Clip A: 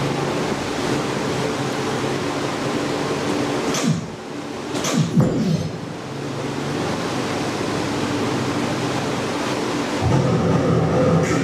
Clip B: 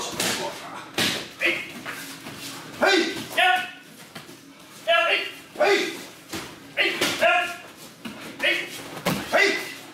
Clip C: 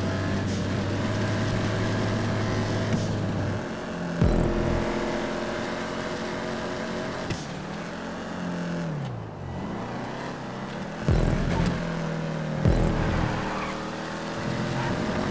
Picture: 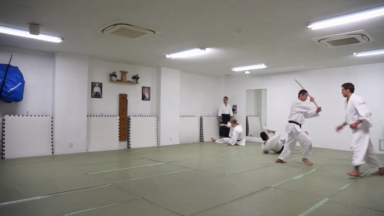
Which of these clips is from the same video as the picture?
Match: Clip B